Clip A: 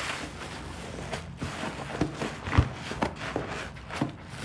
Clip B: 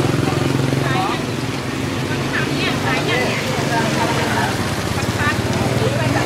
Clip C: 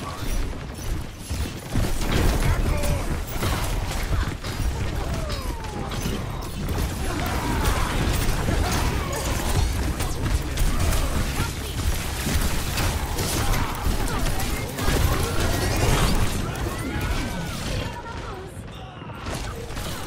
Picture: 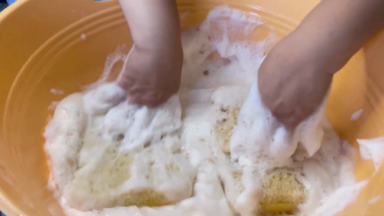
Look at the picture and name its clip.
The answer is A